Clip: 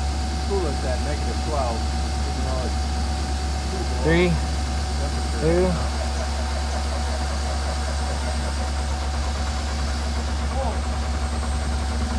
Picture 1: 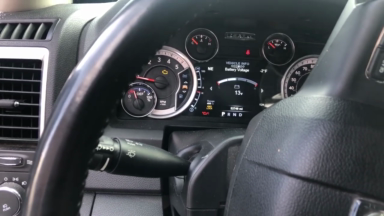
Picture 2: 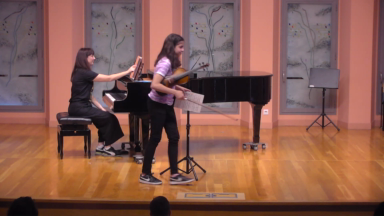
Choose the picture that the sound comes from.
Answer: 1